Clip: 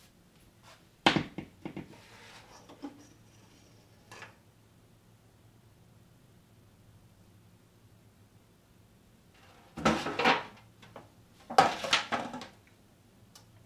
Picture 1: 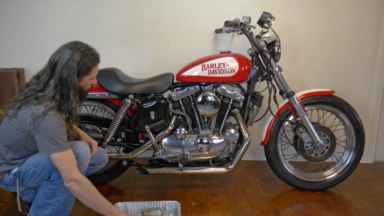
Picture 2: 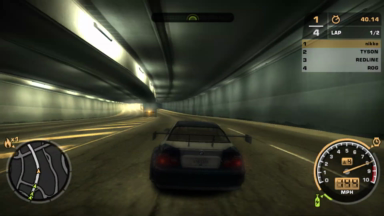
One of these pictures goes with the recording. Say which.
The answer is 1